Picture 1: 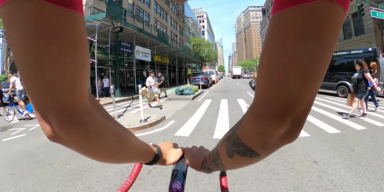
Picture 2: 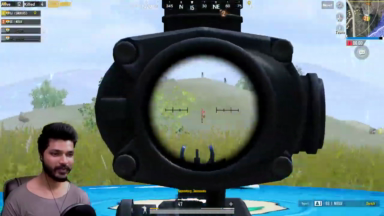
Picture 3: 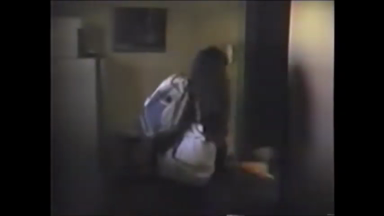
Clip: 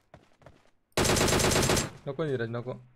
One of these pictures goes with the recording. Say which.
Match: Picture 2